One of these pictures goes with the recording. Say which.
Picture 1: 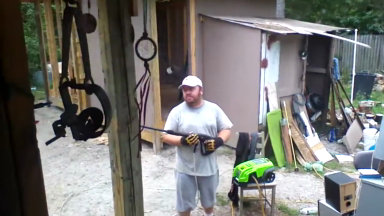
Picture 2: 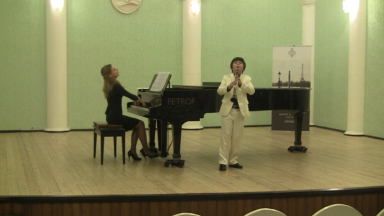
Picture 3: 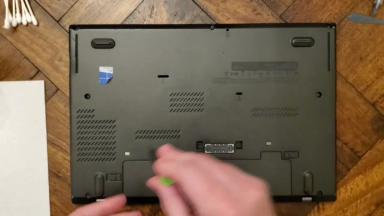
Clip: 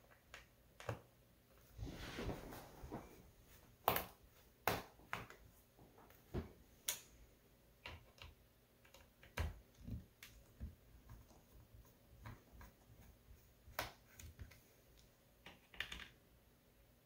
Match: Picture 3